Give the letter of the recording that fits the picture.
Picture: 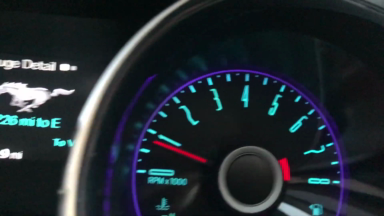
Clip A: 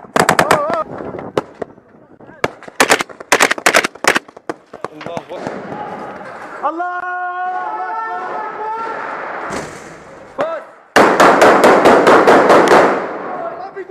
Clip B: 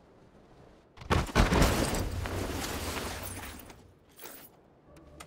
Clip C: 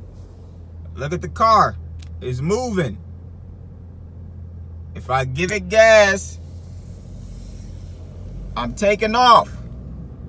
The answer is C